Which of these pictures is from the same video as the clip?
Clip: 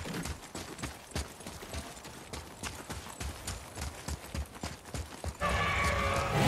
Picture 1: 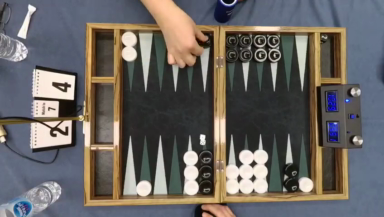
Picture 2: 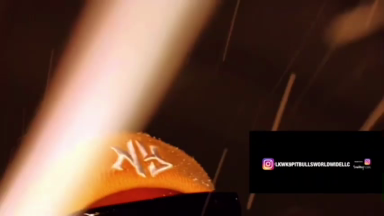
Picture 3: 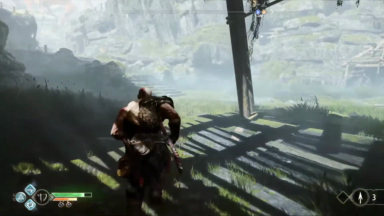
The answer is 3